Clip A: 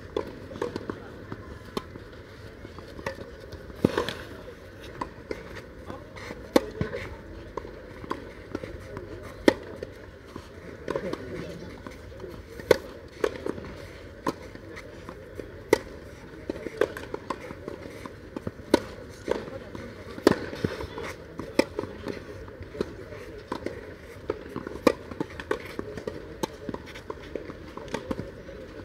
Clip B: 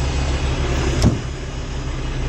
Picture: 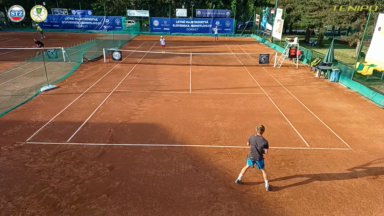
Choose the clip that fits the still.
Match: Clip A